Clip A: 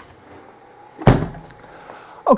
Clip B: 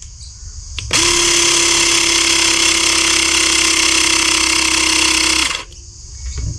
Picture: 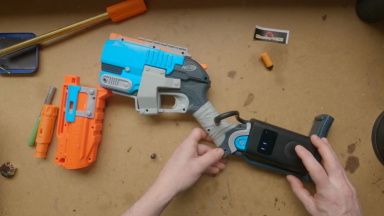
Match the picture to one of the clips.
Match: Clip B